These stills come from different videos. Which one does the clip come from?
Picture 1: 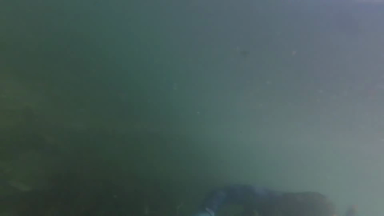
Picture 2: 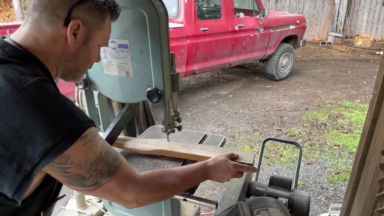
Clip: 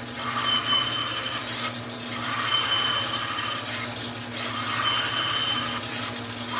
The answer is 2